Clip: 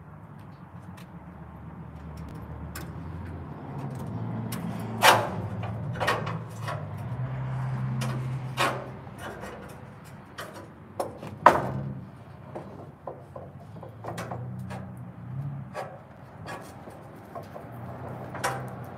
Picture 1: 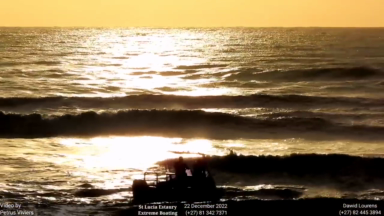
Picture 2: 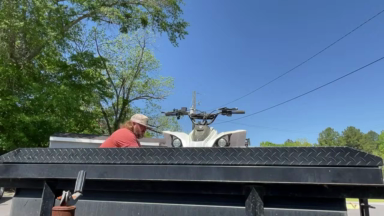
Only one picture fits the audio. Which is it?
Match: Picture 2